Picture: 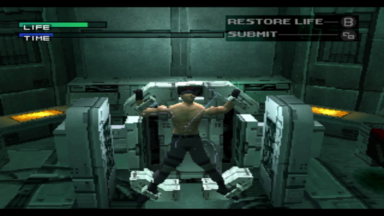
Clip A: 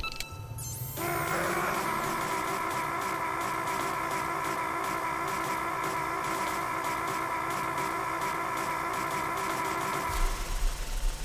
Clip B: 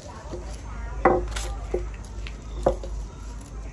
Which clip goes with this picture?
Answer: A